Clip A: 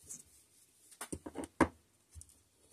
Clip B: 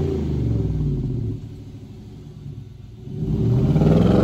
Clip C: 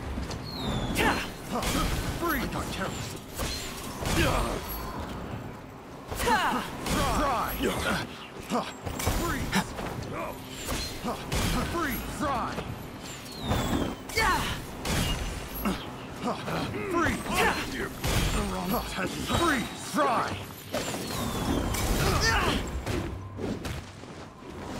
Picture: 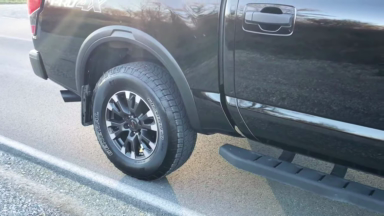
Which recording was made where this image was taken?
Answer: B